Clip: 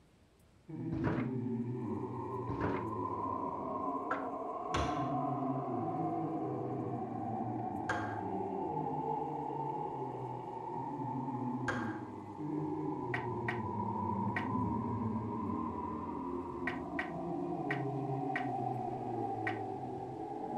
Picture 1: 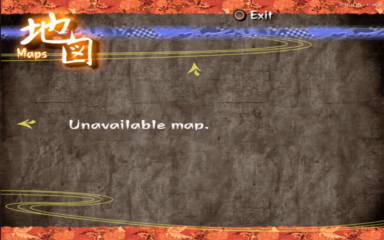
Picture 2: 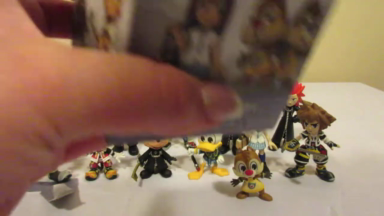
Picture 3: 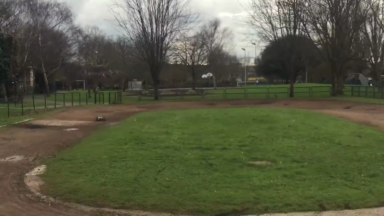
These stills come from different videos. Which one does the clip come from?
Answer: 1